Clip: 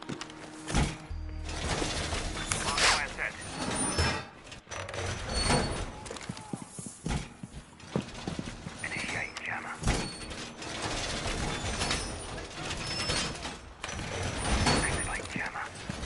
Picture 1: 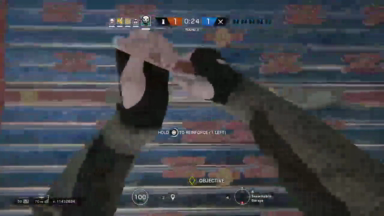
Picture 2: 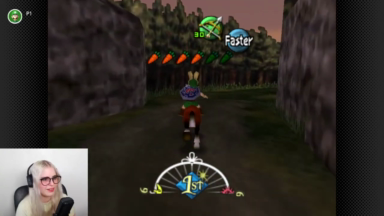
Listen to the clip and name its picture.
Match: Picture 1